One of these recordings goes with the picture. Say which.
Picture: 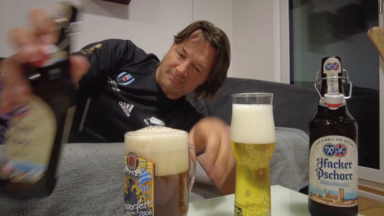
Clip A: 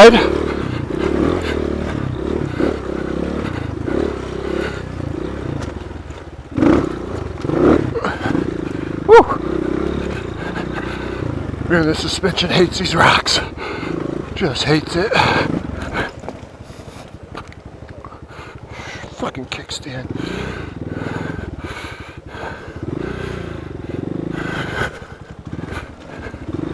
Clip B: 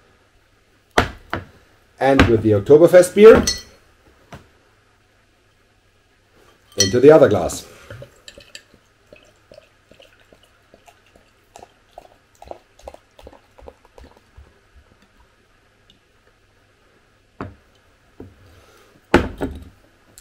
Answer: B